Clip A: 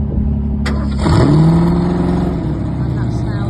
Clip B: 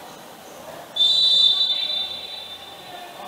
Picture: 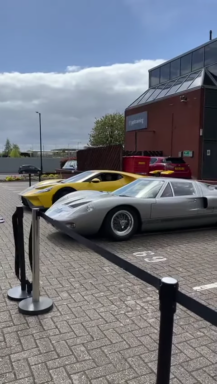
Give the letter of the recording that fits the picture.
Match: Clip A